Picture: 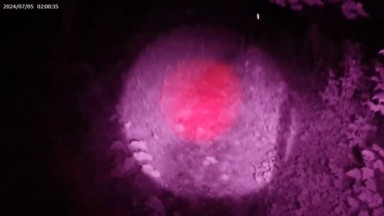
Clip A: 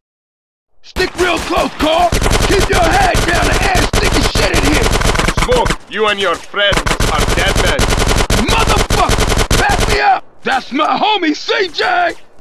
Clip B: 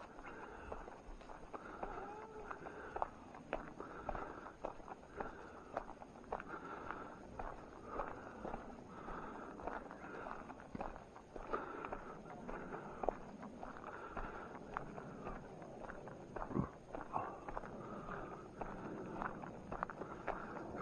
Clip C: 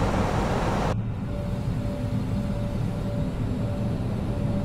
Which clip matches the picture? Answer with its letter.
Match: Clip B